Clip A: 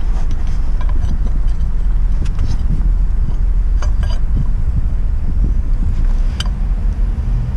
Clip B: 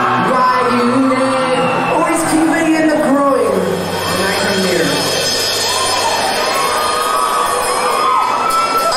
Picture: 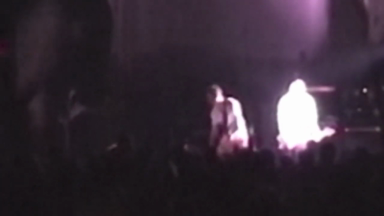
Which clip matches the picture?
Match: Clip B